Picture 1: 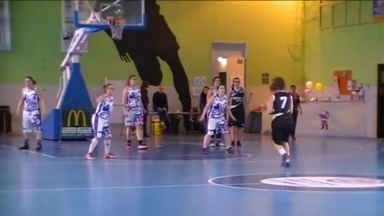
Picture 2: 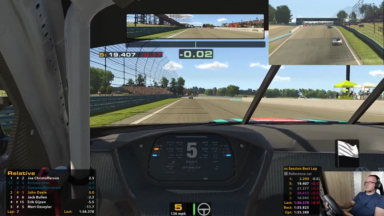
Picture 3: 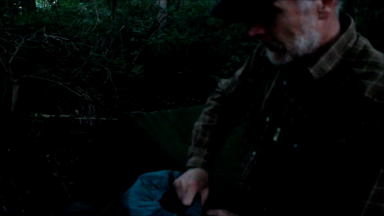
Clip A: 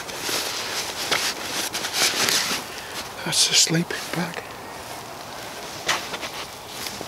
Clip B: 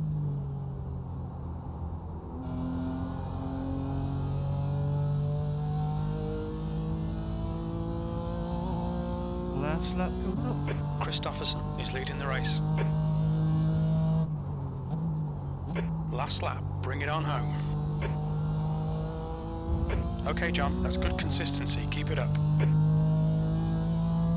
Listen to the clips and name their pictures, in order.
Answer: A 3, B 2